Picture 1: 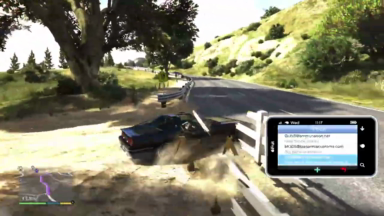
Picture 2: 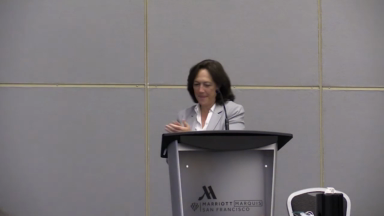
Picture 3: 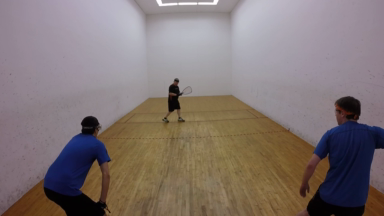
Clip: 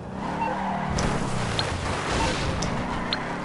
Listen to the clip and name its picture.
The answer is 1